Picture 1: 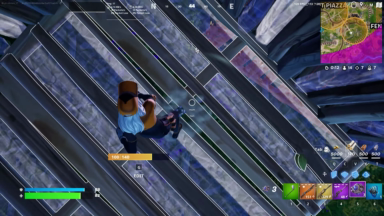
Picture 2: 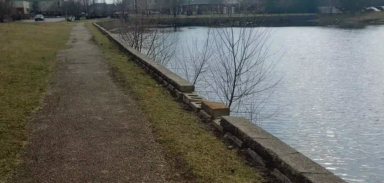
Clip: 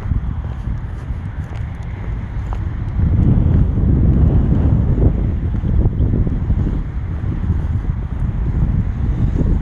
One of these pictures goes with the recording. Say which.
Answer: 2